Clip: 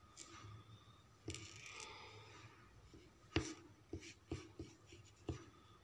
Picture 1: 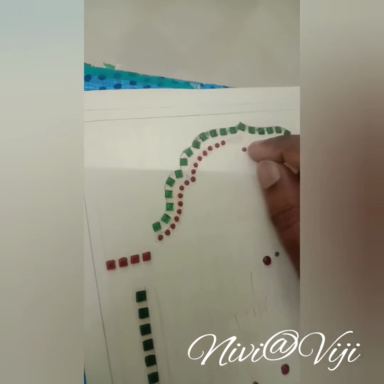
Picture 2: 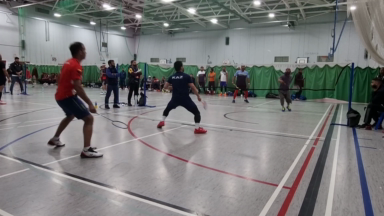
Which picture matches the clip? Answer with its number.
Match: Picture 1